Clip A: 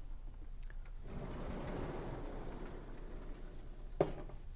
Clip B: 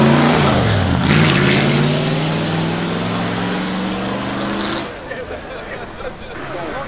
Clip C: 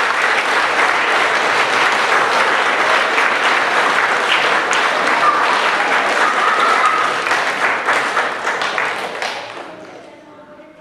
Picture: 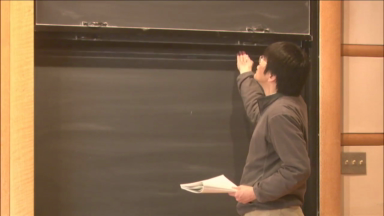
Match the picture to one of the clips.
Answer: A